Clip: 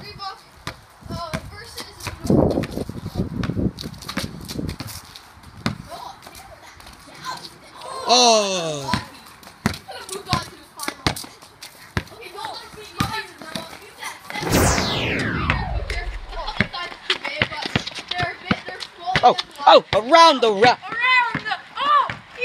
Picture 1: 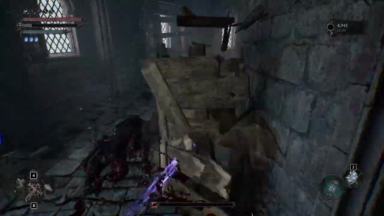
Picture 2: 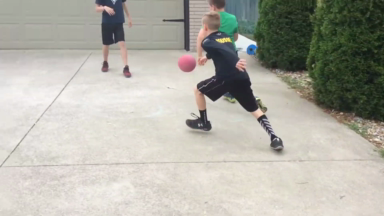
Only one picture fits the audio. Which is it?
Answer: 2